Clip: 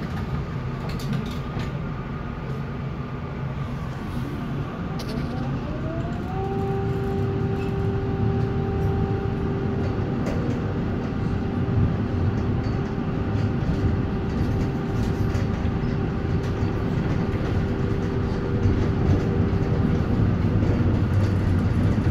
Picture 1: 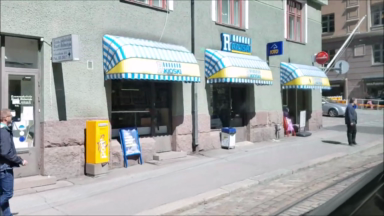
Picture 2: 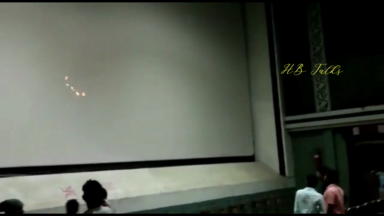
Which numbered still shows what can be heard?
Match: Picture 1